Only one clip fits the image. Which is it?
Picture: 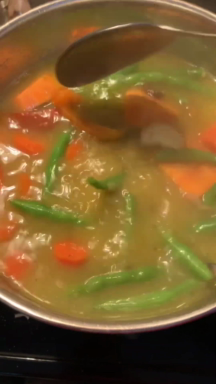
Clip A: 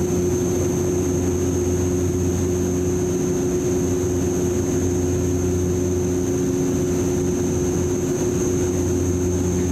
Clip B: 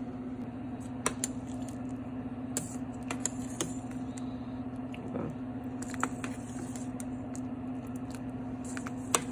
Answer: B